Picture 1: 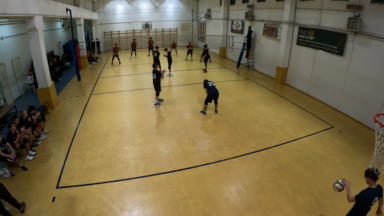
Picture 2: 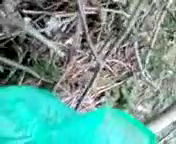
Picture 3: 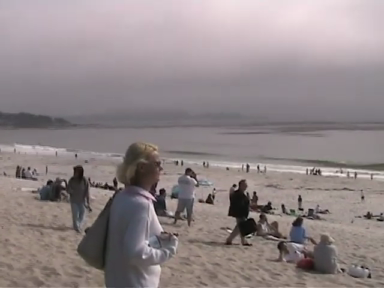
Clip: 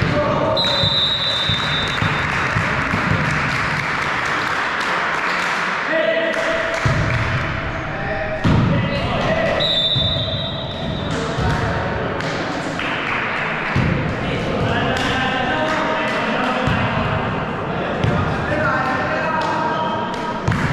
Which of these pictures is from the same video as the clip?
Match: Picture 1